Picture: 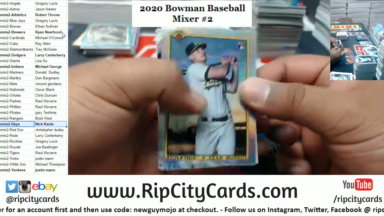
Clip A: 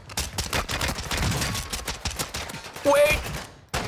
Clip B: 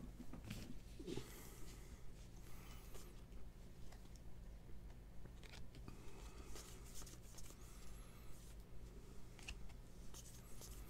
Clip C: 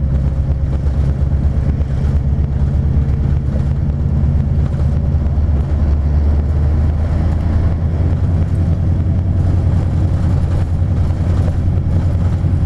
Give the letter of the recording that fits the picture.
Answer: B